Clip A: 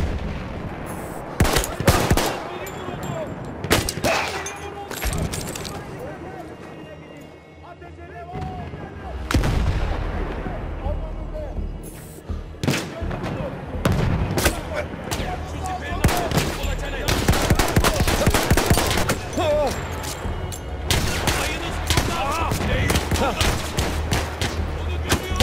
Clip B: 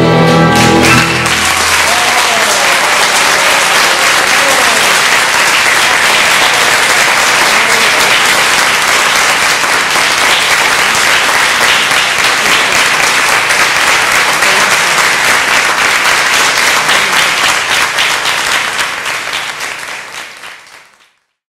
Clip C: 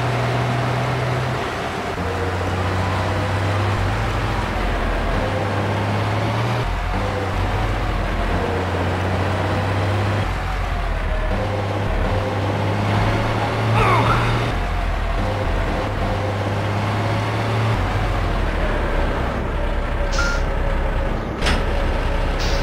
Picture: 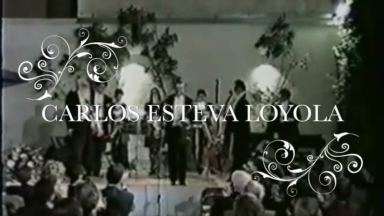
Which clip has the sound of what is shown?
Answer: B